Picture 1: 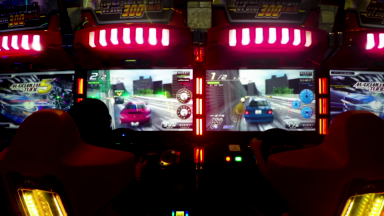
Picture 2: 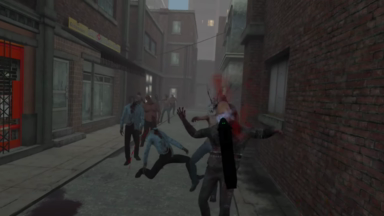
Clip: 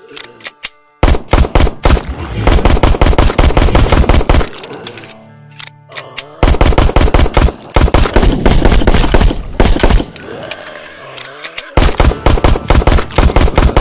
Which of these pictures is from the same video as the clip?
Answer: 2